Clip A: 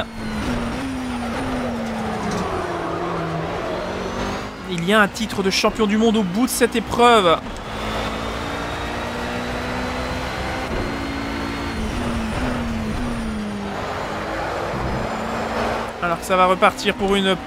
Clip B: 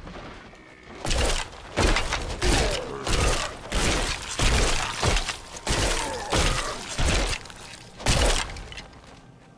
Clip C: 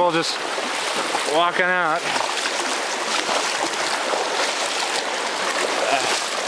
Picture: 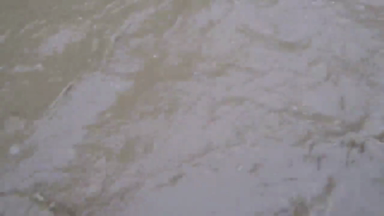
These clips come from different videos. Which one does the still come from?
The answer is C